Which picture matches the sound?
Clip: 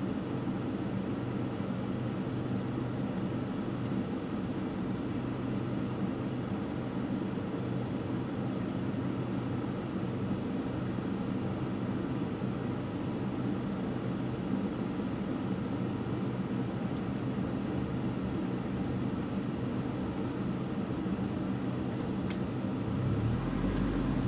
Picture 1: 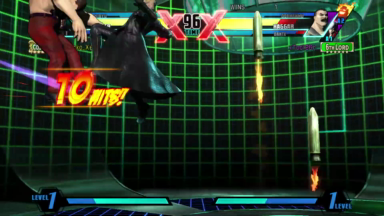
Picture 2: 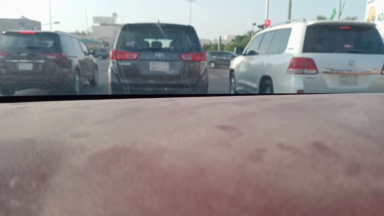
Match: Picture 2